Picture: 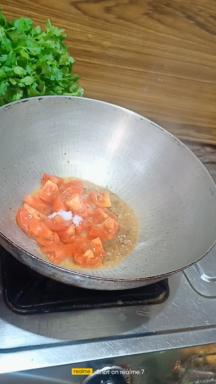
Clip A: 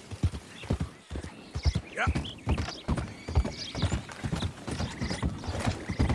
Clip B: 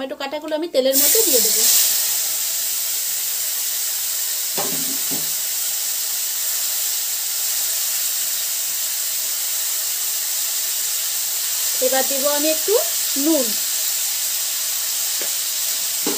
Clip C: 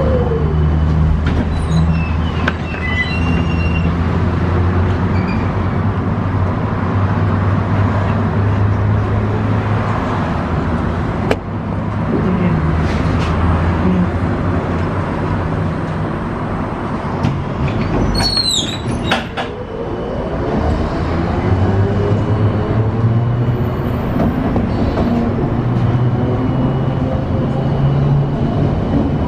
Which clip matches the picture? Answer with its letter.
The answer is B